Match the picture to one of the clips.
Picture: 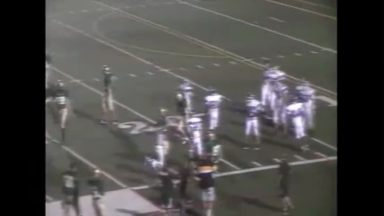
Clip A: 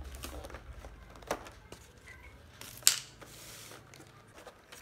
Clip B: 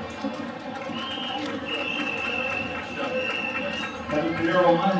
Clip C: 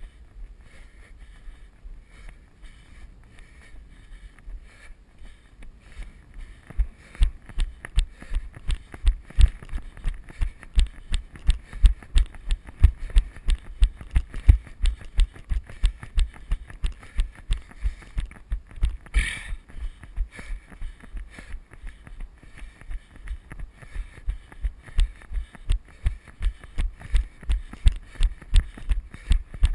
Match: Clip B